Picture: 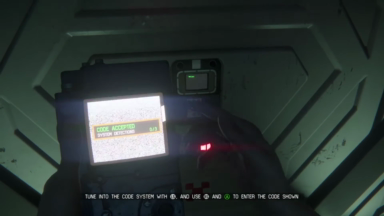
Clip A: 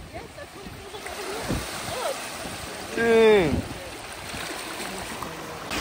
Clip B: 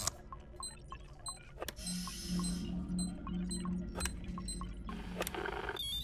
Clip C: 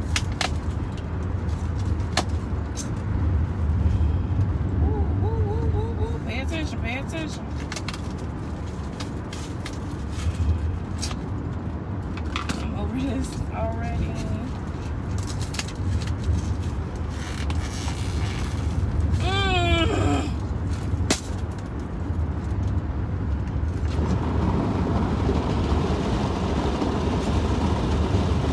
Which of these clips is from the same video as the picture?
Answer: B